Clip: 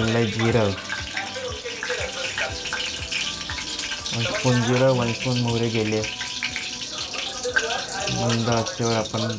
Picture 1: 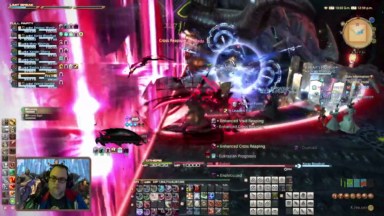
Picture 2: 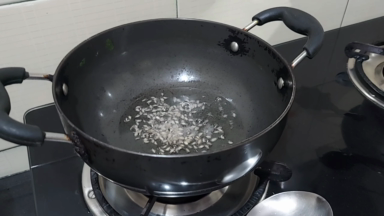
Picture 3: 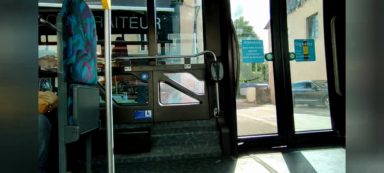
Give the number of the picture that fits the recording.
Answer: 2